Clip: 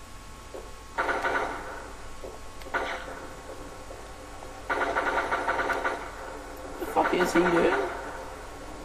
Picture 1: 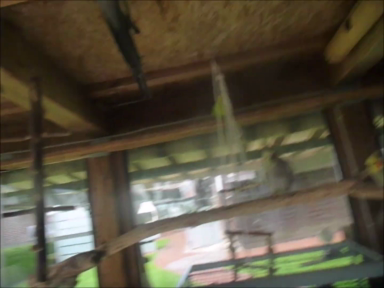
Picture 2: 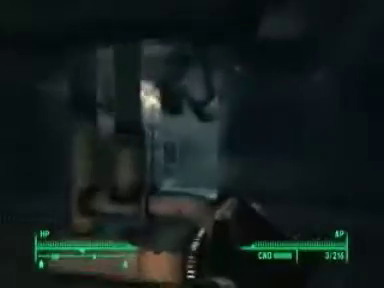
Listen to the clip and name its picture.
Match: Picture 2